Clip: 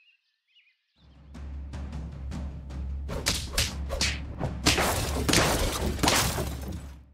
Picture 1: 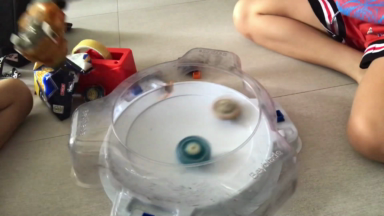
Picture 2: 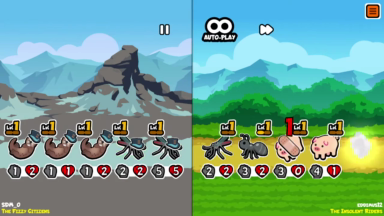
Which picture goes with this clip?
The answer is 2